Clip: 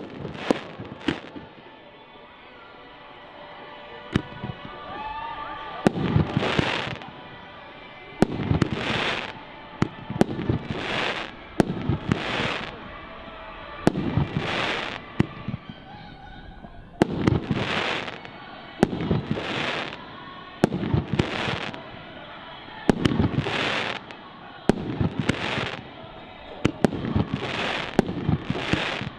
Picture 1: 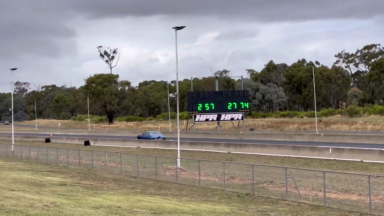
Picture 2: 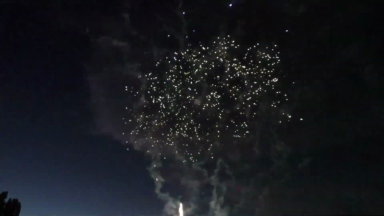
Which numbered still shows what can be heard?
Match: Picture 2